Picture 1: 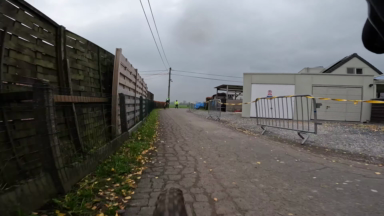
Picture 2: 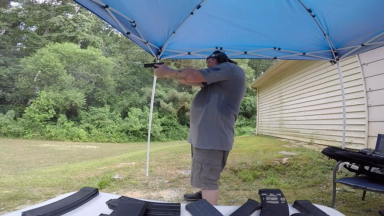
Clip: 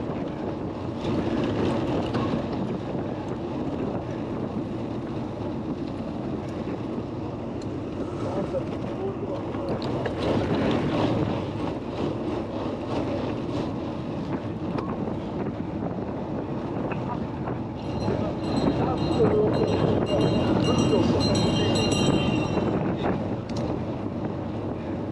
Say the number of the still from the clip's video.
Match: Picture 1